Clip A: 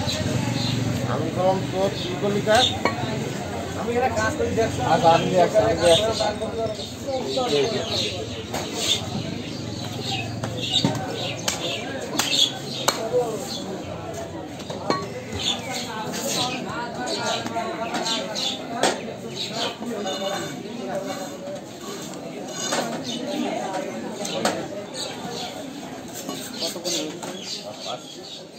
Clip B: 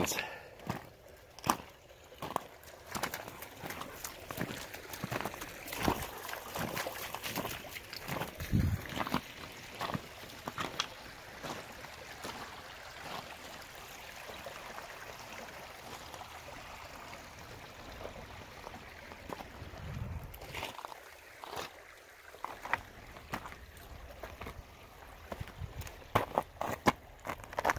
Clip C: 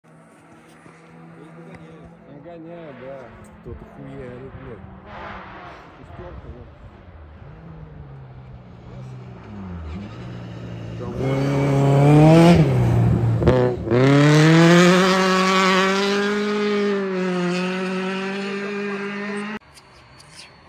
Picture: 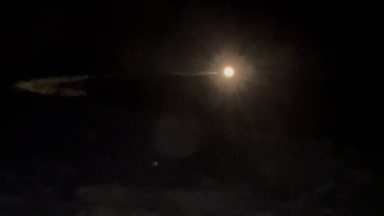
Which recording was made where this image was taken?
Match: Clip C